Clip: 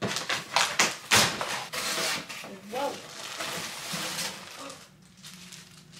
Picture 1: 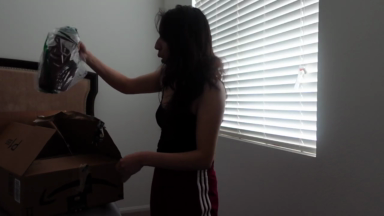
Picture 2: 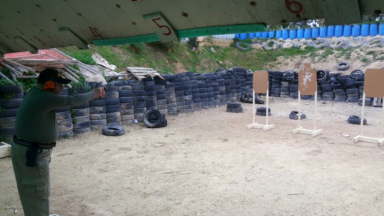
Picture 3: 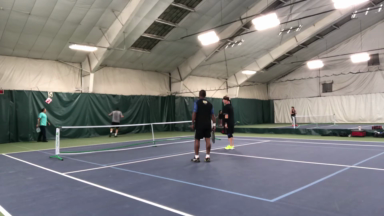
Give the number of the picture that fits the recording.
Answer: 1